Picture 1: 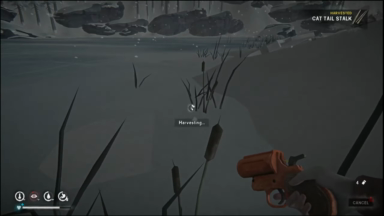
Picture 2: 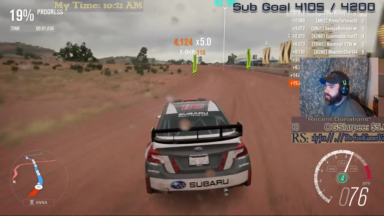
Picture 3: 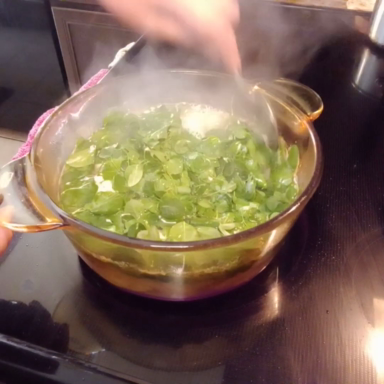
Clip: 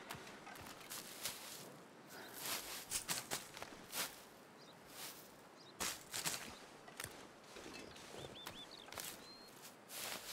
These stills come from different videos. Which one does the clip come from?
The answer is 1